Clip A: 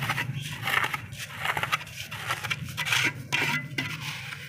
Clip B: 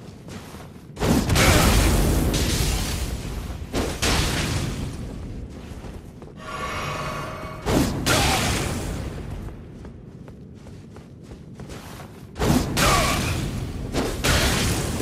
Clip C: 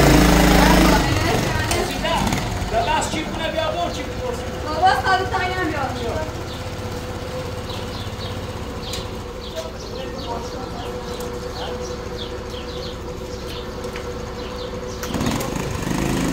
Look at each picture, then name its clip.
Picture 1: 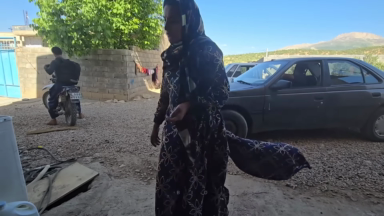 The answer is C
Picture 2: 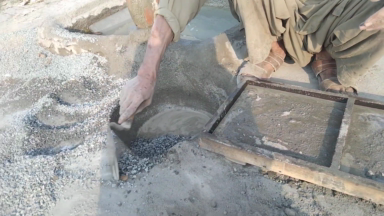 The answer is A